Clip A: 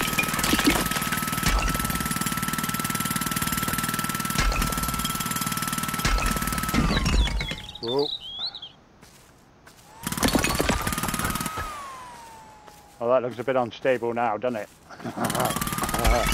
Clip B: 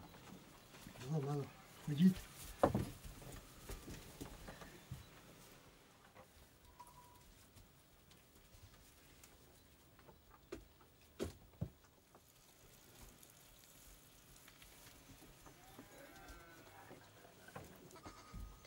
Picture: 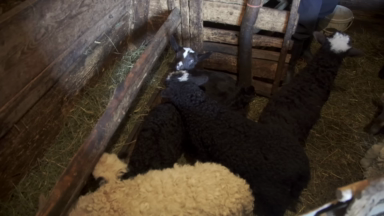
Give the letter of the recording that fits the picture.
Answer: B